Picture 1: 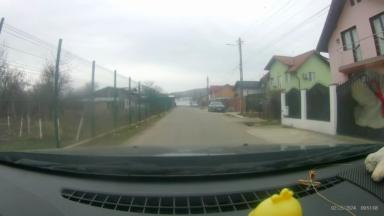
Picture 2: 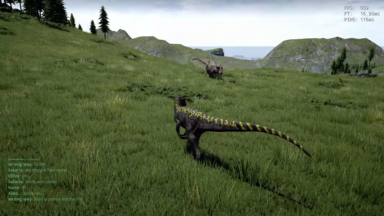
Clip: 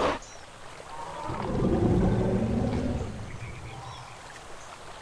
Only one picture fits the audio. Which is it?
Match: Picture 2